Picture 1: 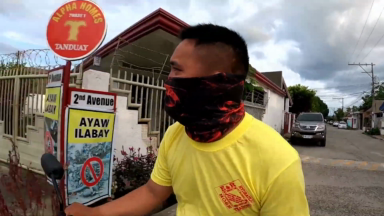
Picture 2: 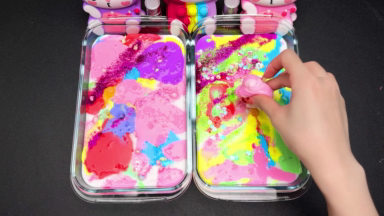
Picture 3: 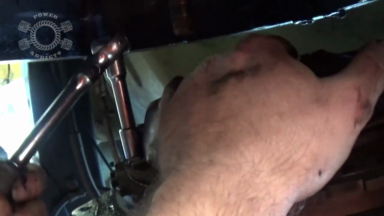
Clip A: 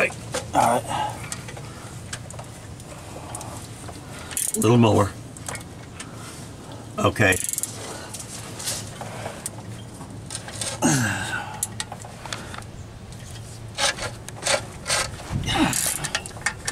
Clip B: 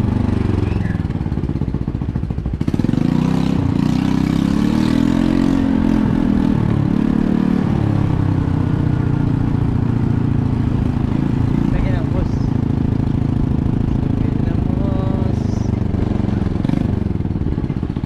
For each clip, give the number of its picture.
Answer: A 3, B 1